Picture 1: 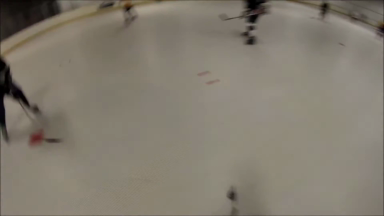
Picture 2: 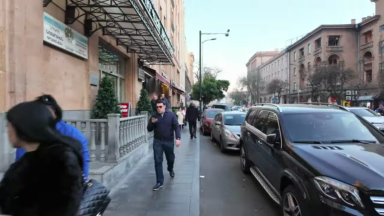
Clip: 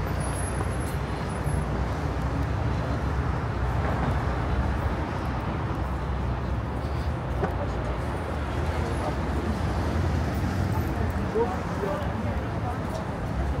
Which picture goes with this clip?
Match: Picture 2